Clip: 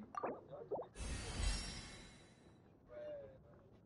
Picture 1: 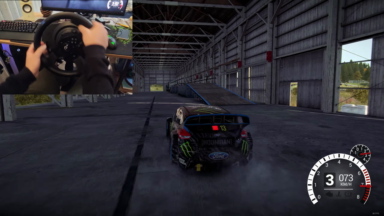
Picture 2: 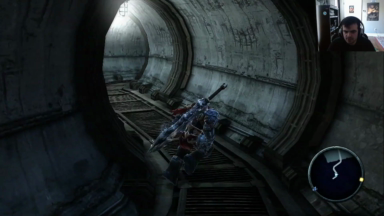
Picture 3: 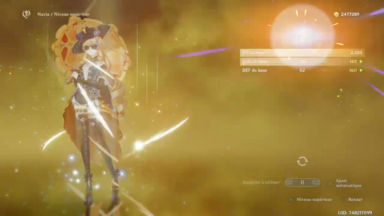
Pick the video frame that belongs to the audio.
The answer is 3